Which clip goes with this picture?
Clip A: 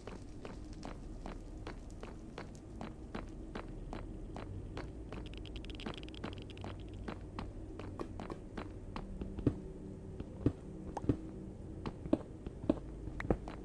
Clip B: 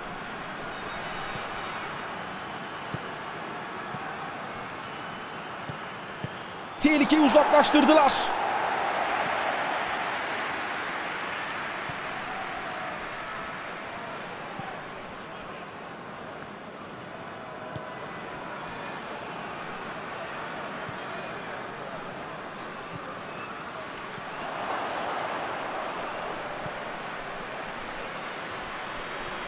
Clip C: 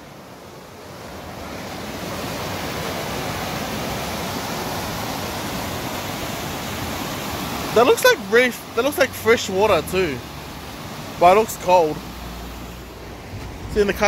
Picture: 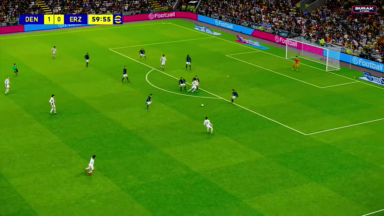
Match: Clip B